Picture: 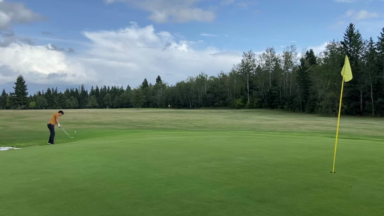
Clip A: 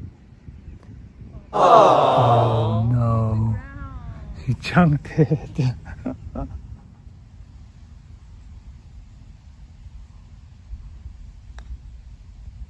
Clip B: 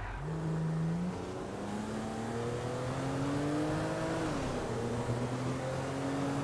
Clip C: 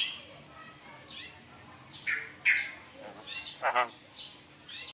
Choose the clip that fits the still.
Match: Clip A